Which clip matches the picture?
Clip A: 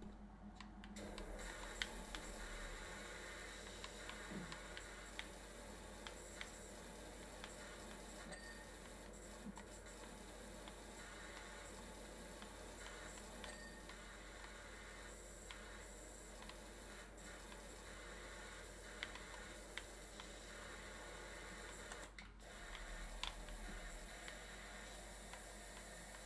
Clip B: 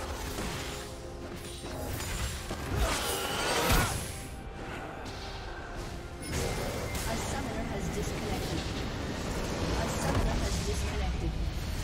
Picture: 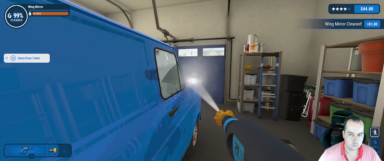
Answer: A